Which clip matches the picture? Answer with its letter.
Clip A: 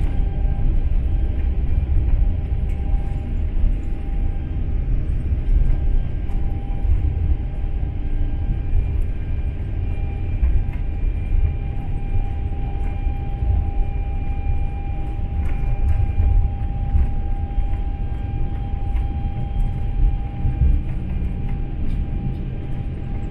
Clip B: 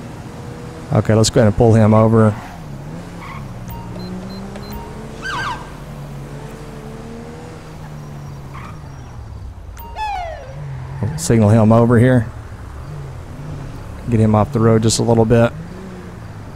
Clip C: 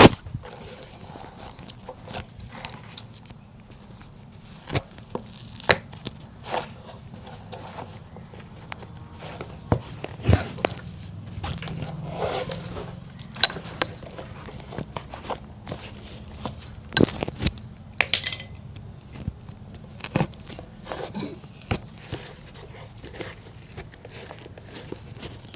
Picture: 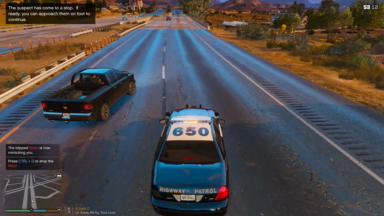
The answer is B